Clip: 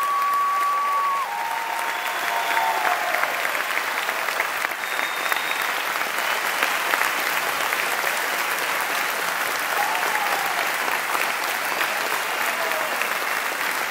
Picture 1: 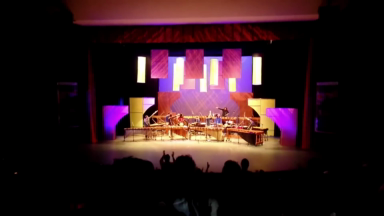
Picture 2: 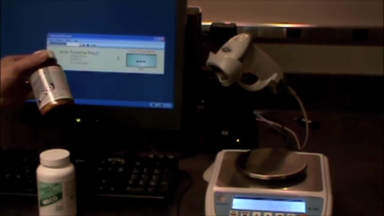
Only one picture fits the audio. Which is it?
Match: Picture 1